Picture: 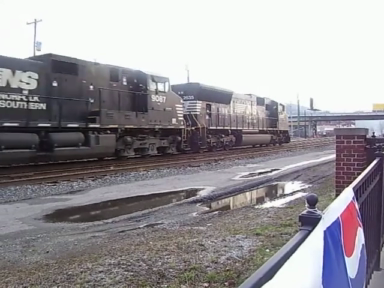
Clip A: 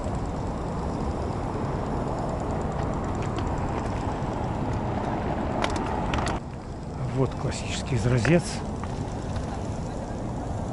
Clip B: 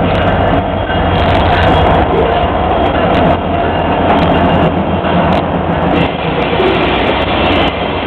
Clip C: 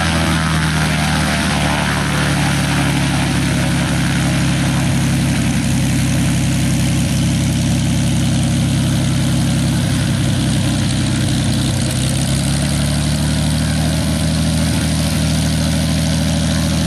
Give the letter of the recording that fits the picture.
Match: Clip B